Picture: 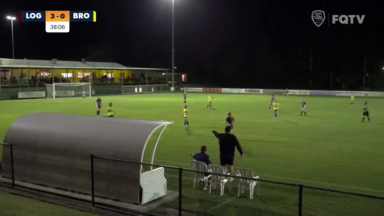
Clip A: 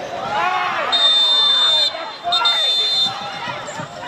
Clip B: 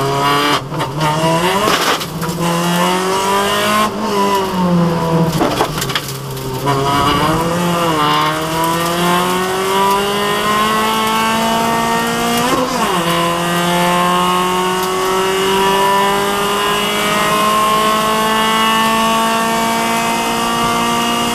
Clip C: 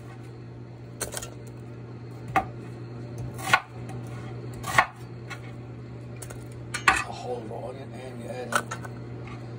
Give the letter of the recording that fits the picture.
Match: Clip A